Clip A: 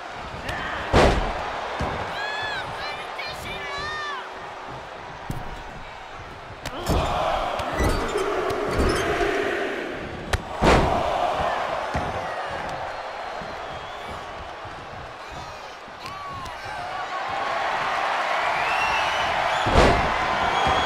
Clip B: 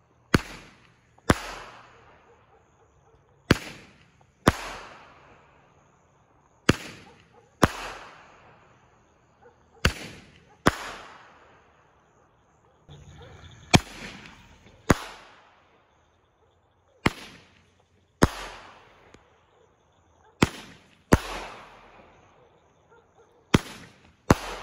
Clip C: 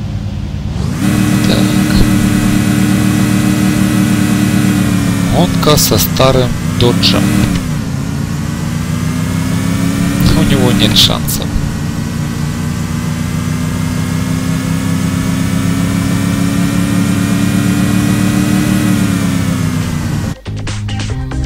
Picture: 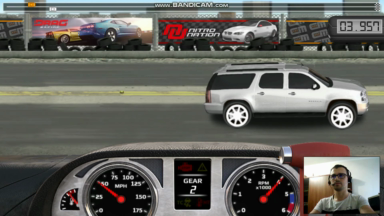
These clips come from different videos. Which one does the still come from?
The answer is C